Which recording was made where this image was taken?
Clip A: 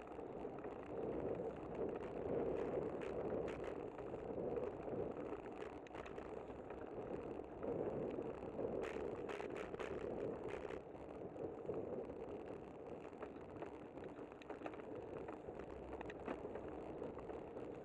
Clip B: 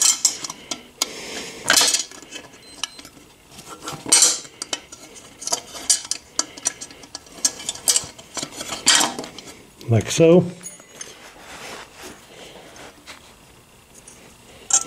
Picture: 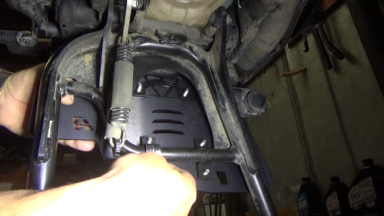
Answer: B